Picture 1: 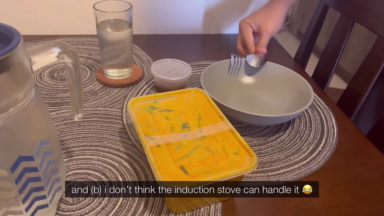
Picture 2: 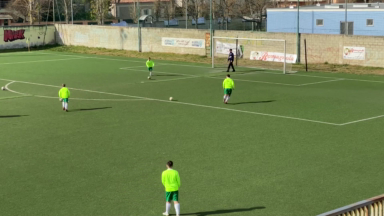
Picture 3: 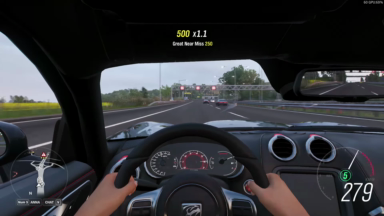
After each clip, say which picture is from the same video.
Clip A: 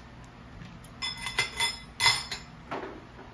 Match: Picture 1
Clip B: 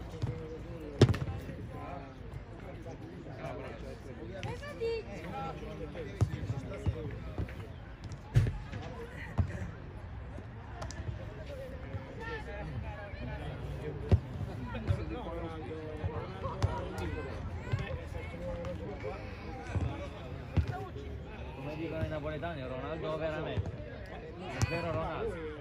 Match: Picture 2